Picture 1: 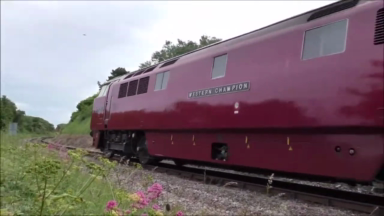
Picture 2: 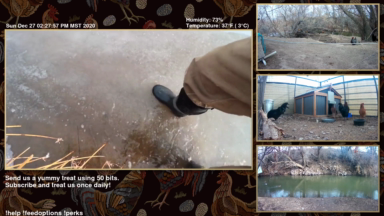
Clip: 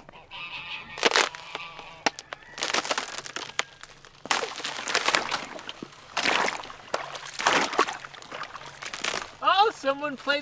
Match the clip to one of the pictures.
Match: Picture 2